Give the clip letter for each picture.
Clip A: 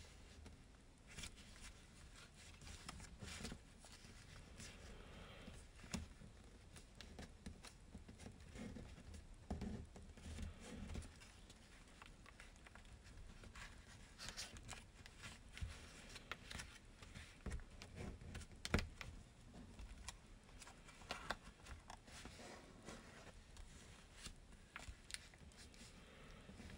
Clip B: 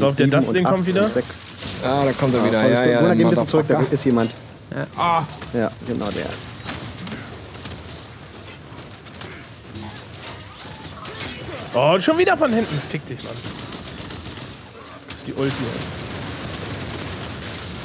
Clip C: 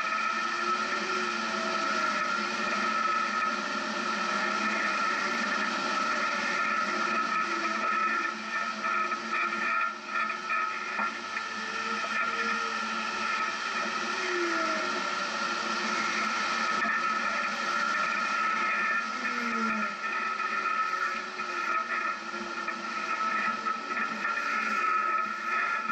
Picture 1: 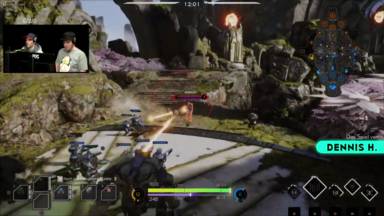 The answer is B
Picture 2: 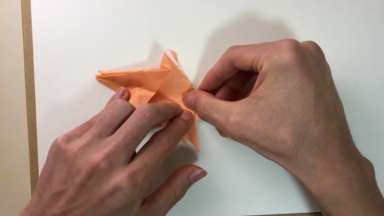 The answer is A